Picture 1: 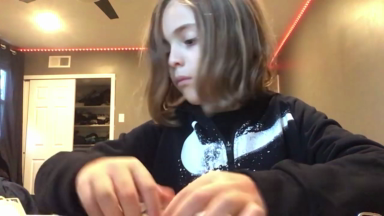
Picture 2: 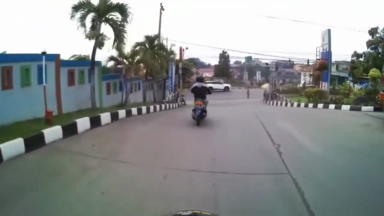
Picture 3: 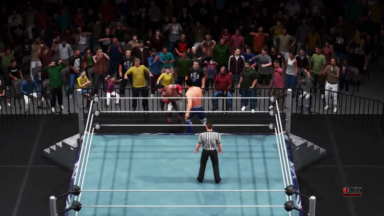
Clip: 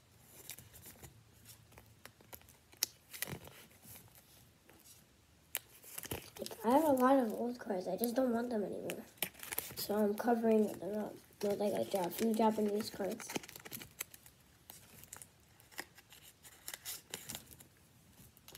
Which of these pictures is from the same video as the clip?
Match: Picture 1